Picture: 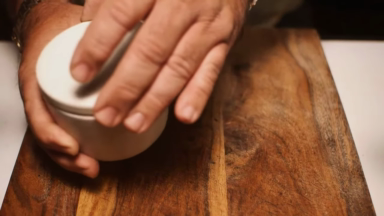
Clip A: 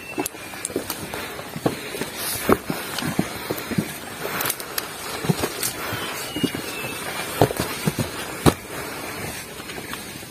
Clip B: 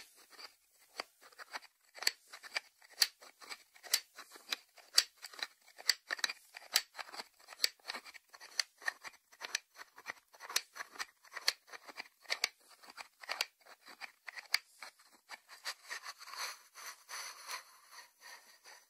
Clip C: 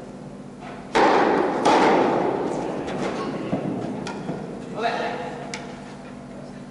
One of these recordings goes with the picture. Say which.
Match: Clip B